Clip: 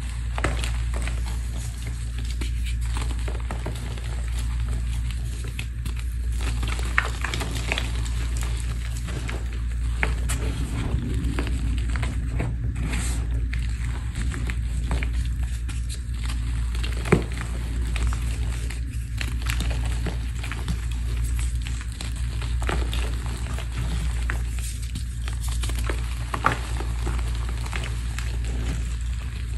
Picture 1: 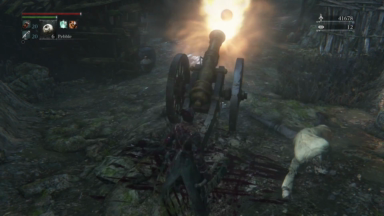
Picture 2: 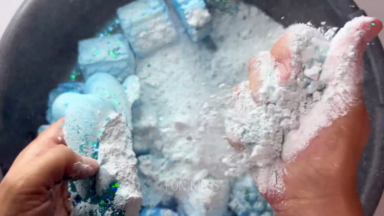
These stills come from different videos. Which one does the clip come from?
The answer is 2